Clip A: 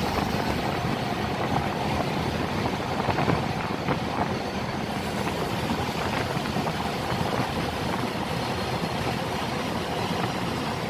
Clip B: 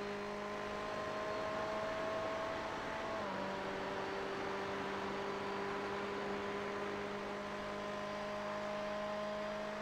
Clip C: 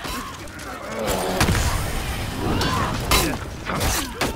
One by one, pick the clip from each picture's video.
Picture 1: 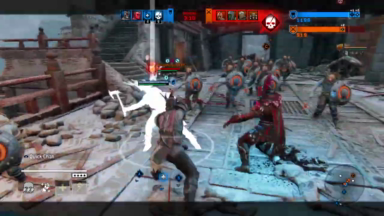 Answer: C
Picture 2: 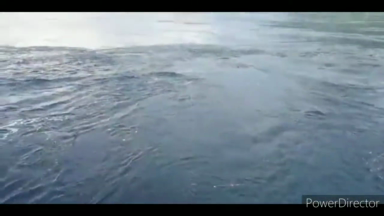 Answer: A